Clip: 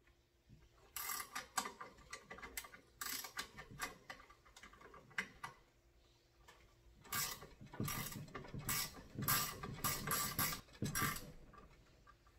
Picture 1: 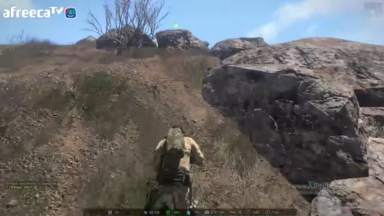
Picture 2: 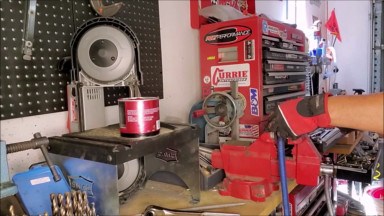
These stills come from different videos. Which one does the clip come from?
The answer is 2